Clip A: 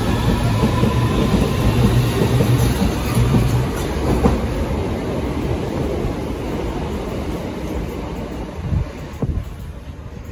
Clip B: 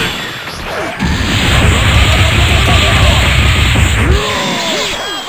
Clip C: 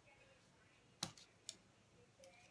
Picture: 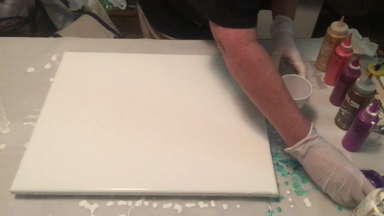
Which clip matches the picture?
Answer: C